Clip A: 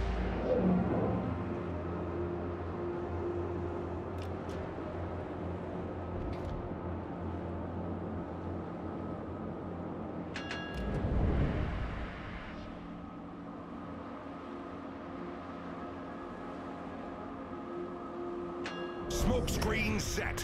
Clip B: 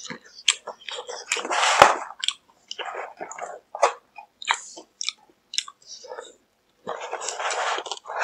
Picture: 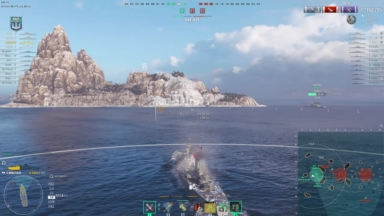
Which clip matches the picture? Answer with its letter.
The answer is A